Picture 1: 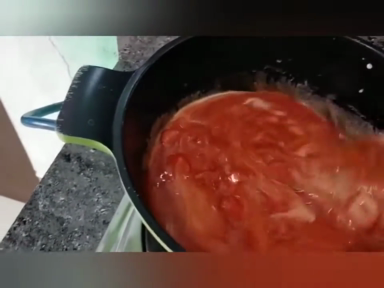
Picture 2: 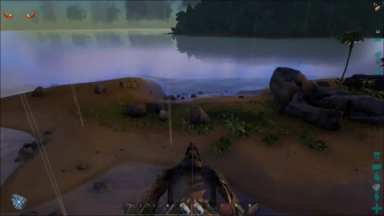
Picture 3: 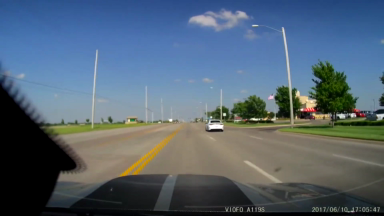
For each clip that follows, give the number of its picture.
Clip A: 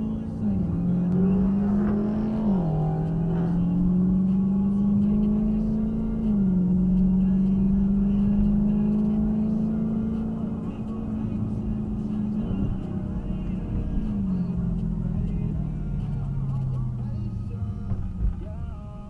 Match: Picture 3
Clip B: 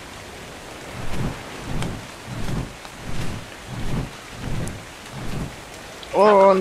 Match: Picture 2